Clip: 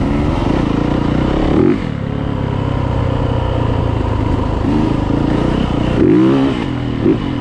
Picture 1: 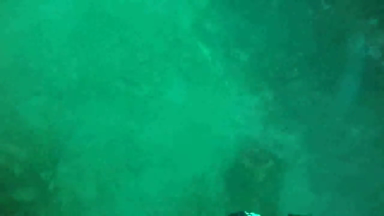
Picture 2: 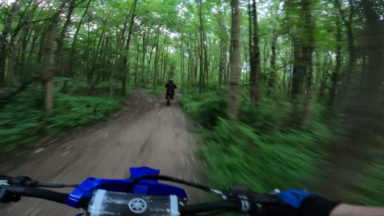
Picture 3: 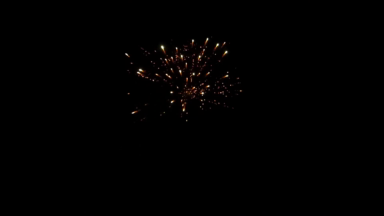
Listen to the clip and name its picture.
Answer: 2